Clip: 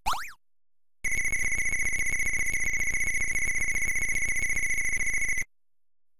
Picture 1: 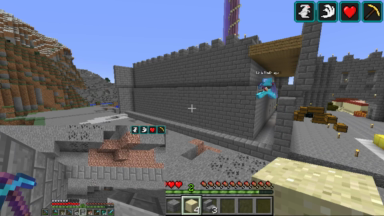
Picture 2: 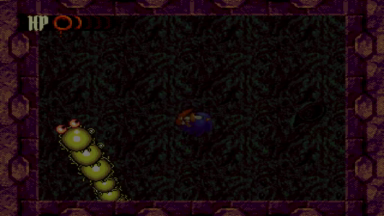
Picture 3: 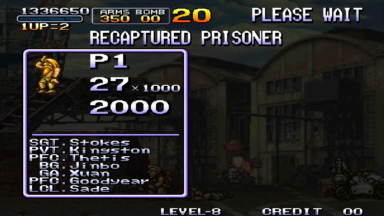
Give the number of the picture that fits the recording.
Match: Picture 3